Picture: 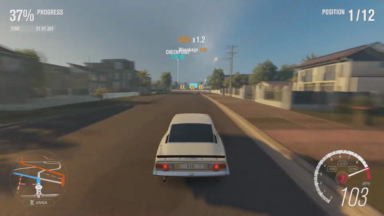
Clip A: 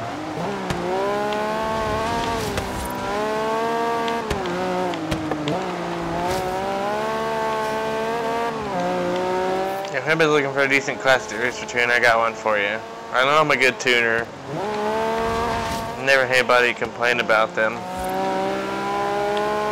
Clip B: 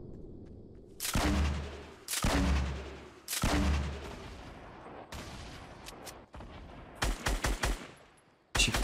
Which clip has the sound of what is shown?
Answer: A